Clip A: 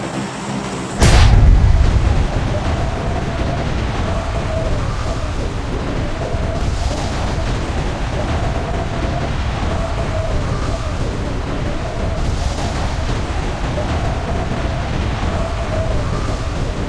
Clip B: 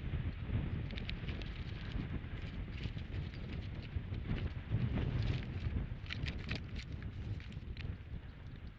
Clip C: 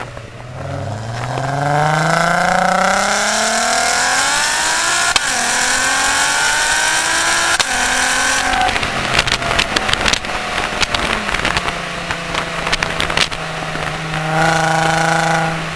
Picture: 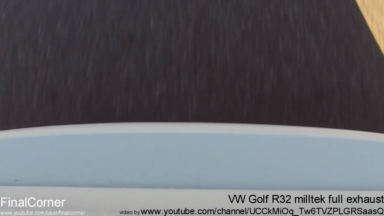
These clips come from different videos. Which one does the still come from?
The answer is C